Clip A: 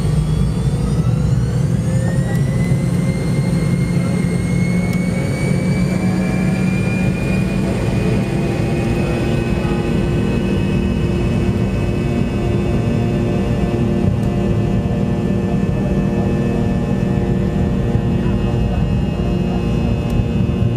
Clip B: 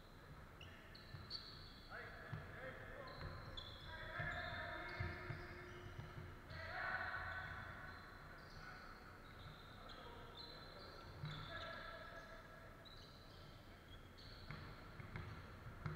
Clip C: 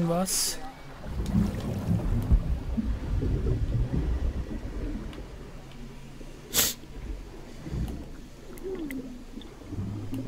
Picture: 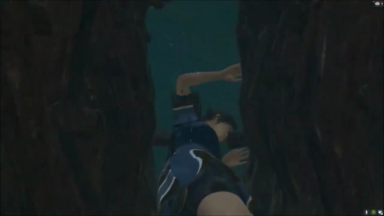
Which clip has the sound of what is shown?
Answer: C